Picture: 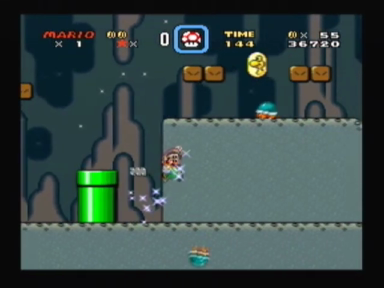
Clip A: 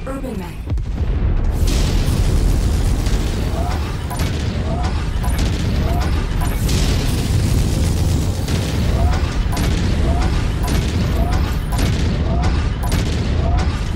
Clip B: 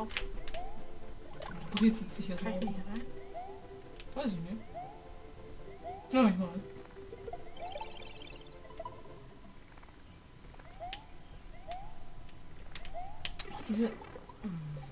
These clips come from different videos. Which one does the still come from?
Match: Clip B